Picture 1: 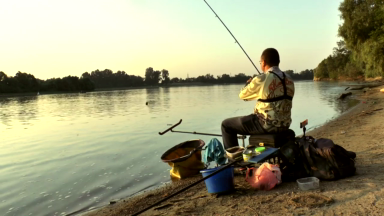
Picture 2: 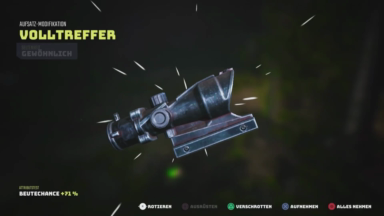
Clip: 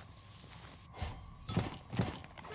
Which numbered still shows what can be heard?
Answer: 2